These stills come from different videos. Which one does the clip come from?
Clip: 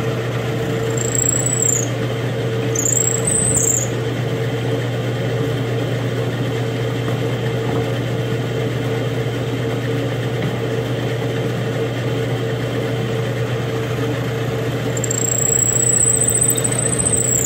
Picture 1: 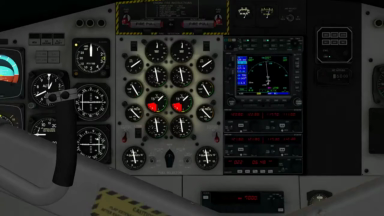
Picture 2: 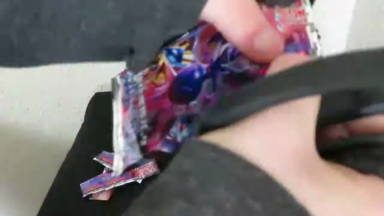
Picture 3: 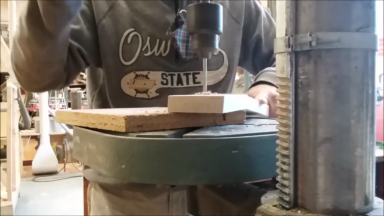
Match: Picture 3